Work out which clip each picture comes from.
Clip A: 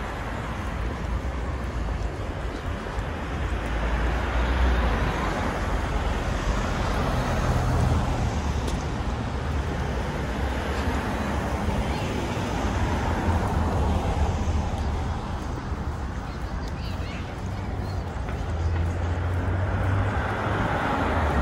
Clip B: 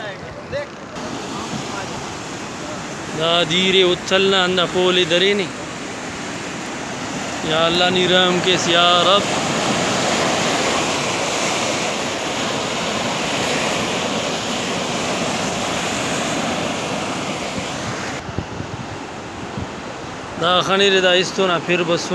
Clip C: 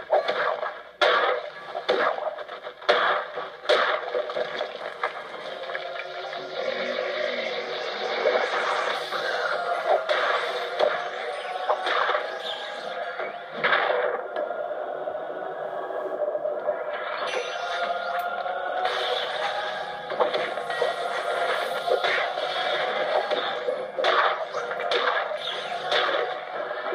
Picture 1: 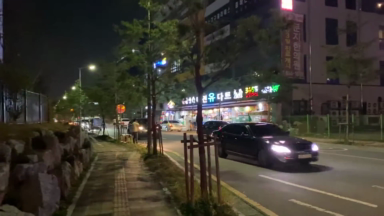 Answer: A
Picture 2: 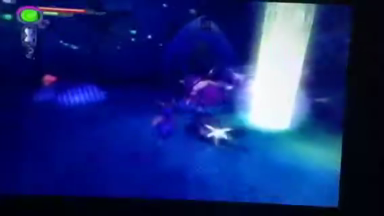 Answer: C